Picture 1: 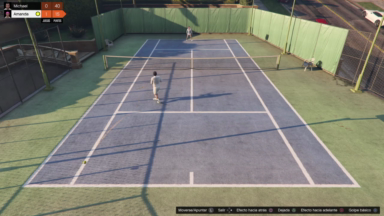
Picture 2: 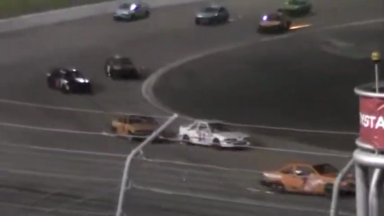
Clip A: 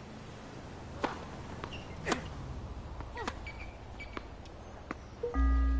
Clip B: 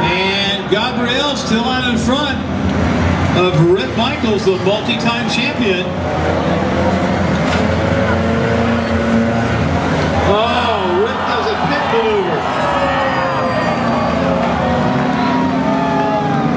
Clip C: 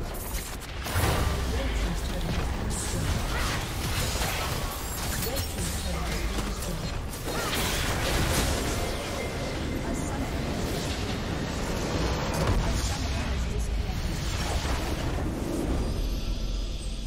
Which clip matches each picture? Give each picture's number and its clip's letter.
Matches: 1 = A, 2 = B